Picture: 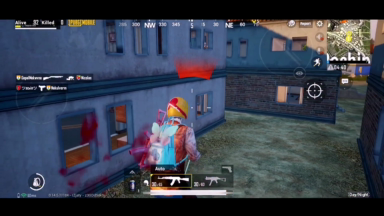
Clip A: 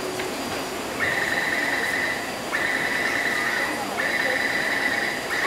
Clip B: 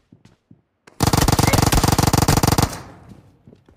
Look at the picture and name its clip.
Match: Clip B